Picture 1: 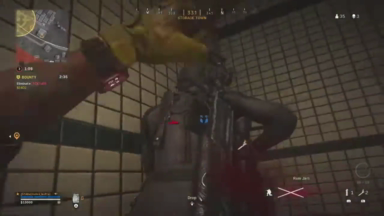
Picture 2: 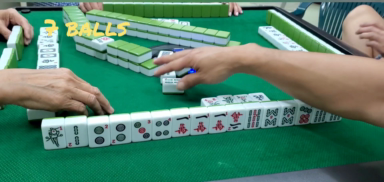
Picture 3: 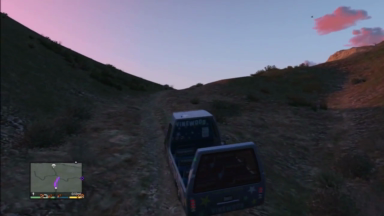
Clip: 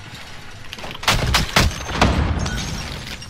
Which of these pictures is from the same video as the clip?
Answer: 1